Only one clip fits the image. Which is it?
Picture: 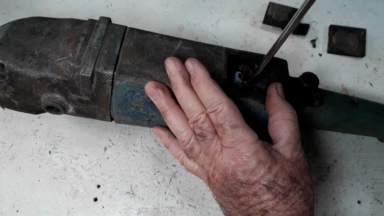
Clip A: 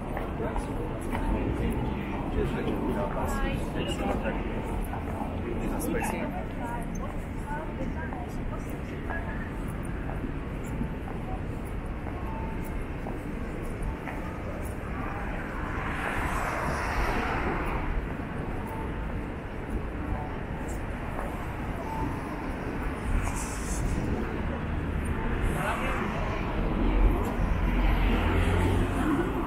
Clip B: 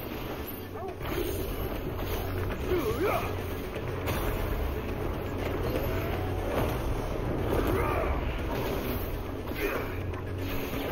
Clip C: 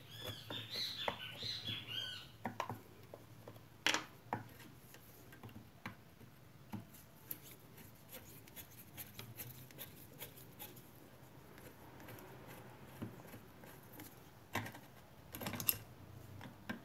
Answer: C